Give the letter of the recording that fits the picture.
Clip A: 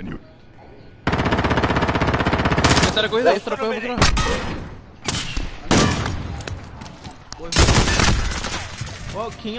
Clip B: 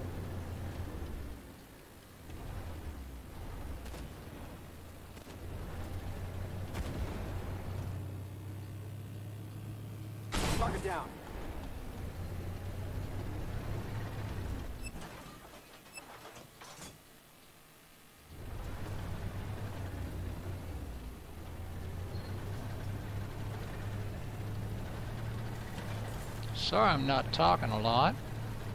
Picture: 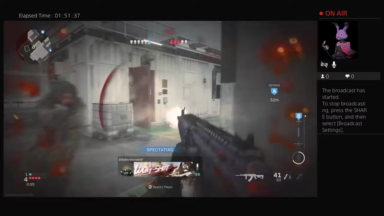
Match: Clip A